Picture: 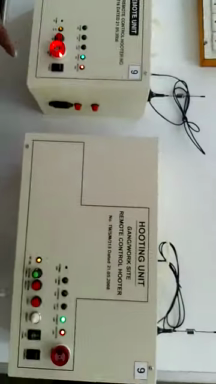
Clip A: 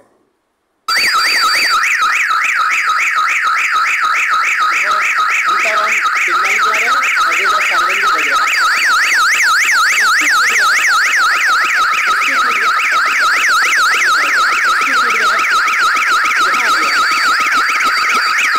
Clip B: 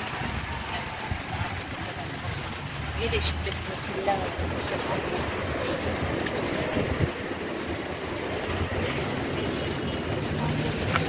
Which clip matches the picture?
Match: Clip A